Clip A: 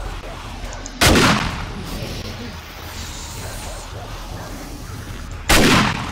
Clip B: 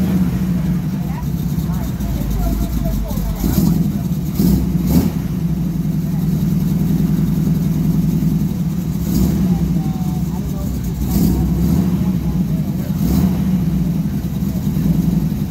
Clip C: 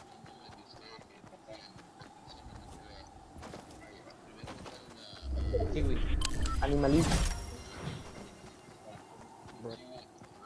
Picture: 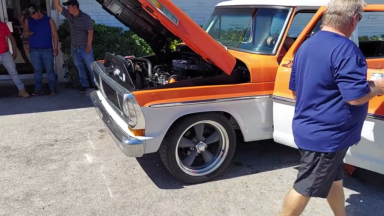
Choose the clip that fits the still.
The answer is B